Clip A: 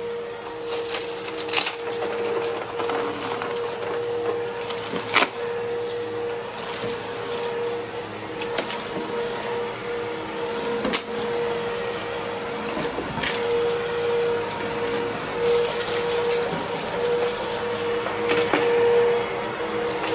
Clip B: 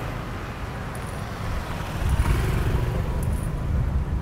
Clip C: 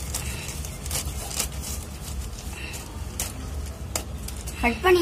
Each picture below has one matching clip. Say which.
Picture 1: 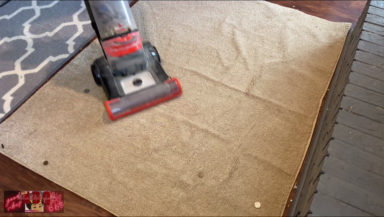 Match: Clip A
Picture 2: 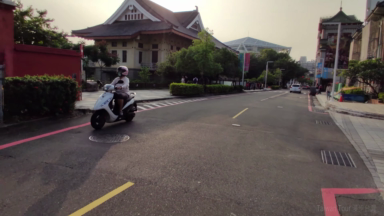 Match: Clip B